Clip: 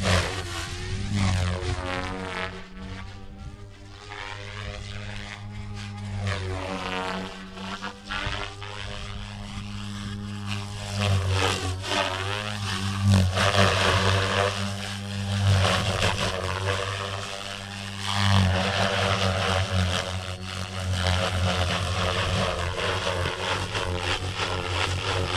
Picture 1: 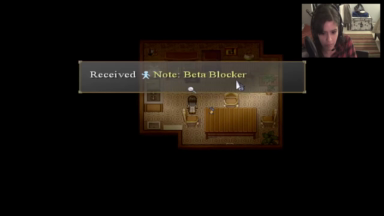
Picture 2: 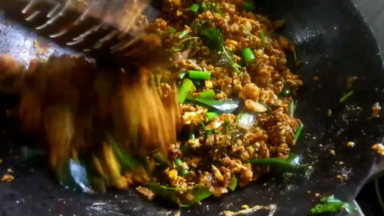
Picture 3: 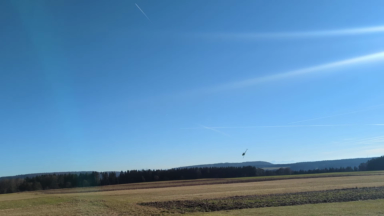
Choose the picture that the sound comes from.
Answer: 3